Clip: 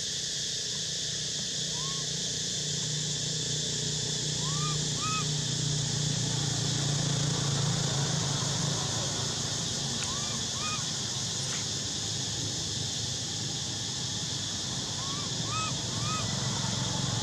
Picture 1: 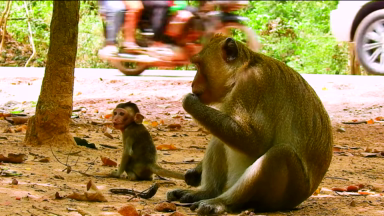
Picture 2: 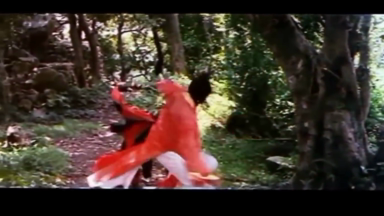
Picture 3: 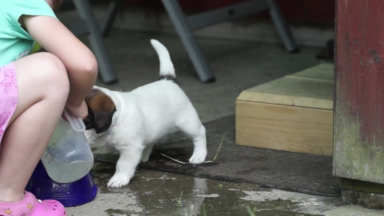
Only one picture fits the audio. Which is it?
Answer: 1